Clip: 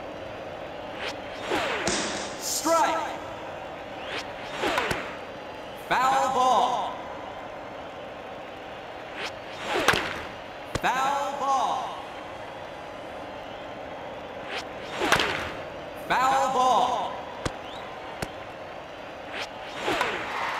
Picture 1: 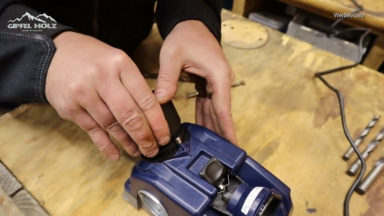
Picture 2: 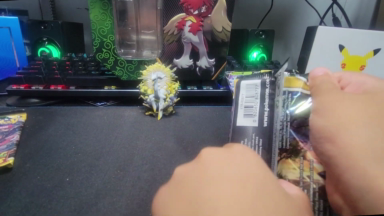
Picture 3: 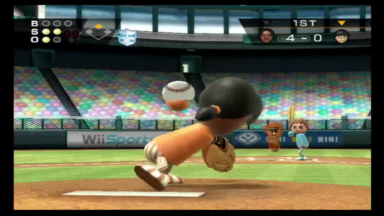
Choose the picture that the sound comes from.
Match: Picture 3